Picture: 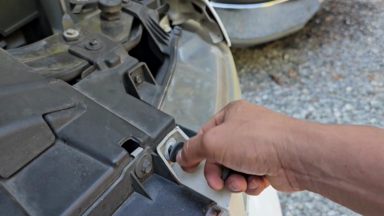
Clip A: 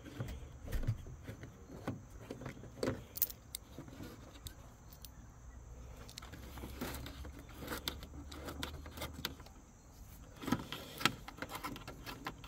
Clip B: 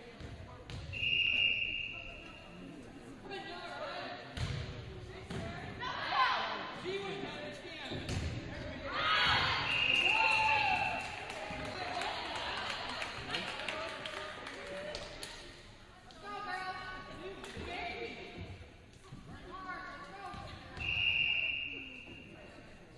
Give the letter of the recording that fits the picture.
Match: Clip A